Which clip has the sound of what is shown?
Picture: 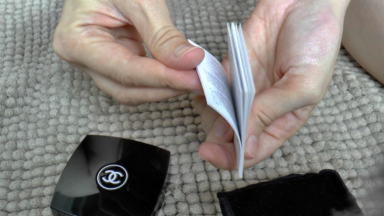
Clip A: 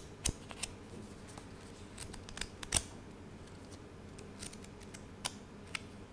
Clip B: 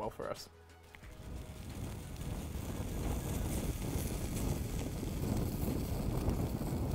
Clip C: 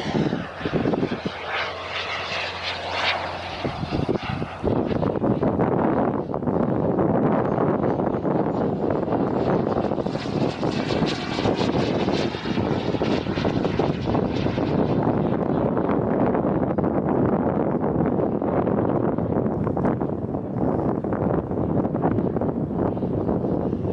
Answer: A